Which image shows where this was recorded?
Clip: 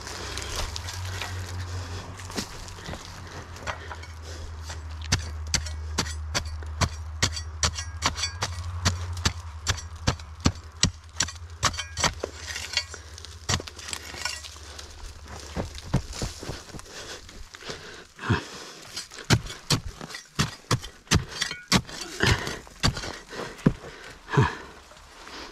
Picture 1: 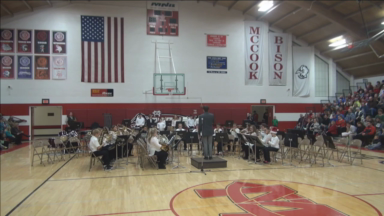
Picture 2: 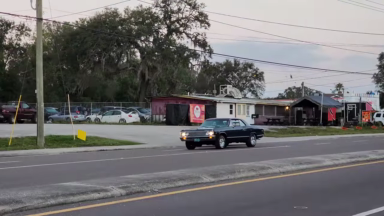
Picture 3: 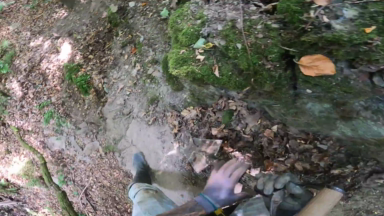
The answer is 3